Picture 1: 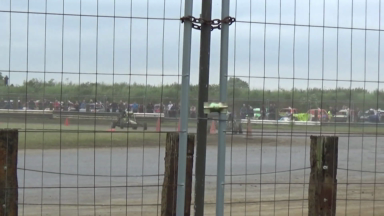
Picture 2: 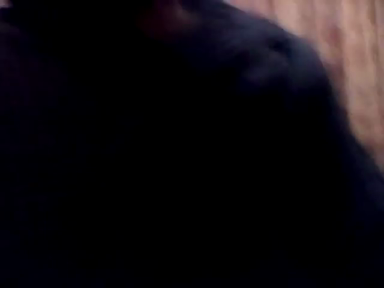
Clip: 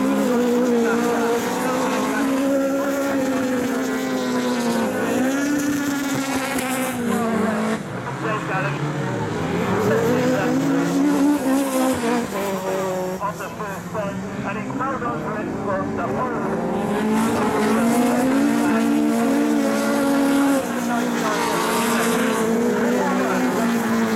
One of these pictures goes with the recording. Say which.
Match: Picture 1